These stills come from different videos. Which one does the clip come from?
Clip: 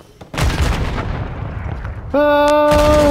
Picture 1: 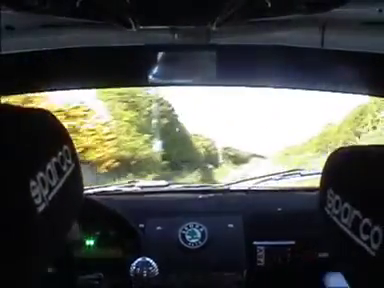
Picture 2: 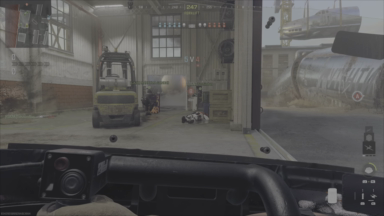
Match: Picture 2